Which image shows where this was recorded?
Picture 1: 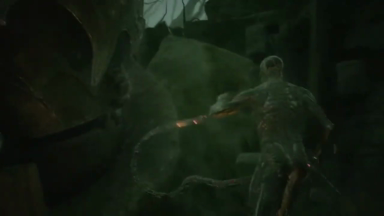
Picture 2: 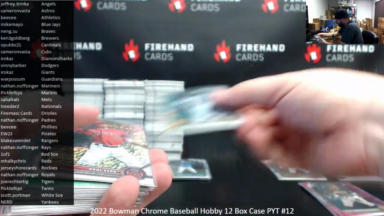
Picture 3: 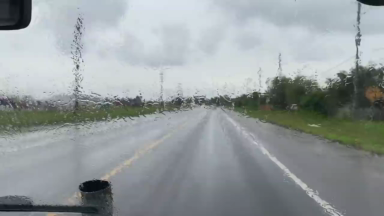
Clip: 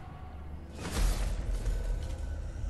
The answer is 1